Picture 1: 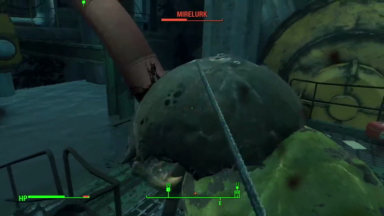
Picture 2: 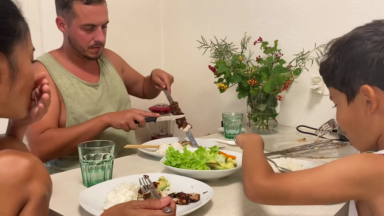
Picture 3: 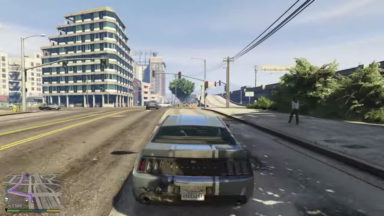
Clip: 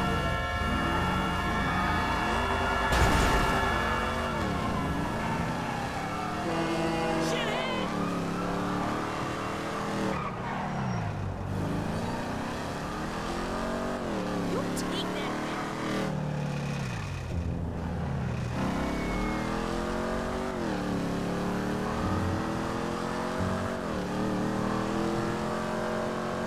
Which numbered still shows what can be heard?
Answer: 3